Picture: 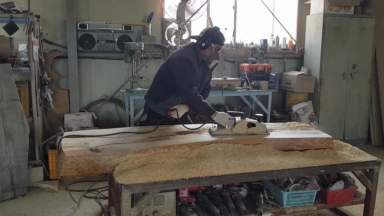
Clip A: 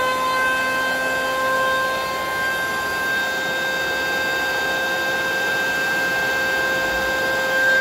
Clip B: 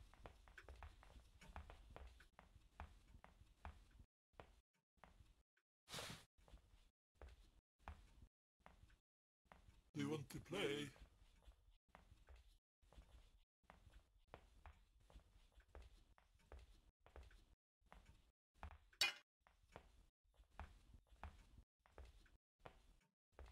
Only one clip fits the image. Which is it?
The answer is A